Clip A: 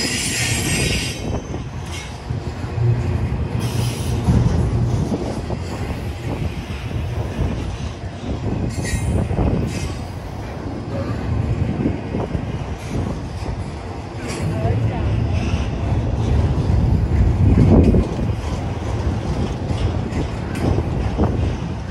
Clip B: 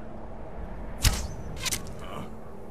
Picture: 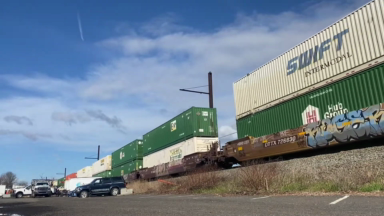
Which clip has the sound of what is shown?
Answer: A